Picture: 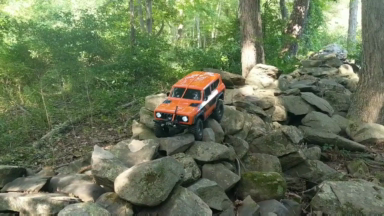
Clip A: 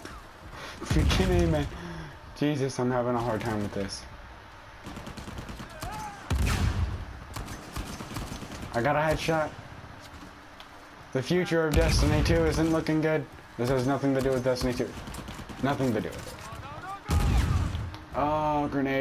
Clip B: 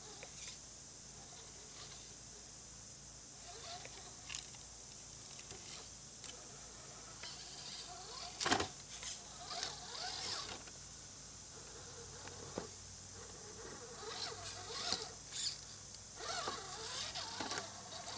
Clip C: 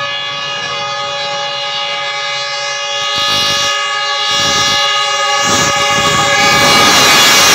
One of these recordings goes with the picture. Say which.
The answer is B